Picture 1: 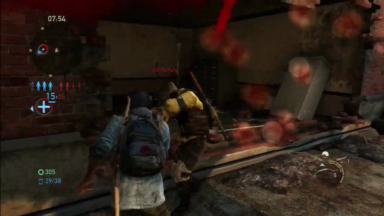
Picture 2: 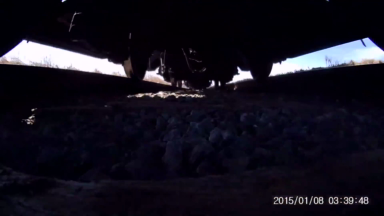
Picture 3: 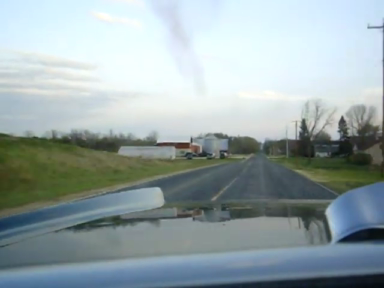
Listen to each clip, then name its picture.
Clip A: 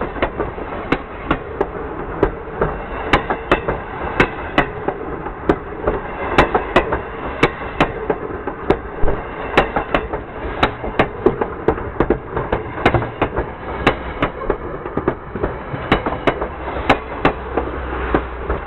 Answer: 2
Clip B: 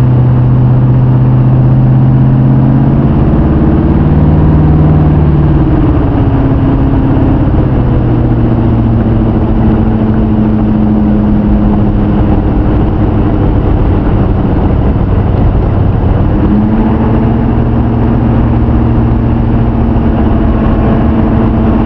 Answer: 3